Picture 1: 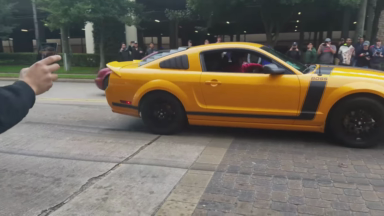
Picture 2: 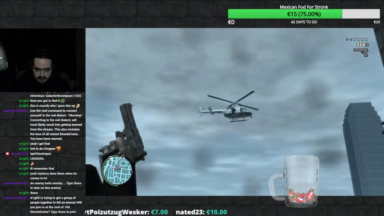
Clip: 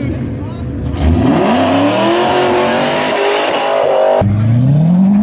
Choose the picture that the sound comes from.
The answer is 1